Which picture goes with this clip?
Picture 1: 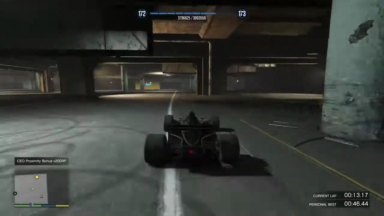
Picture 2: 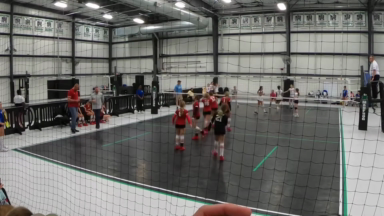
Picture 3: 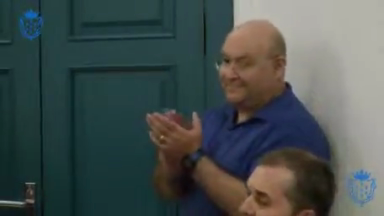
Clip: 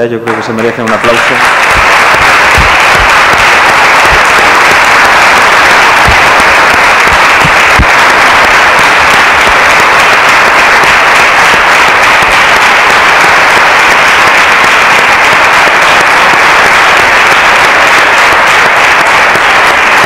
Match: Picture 3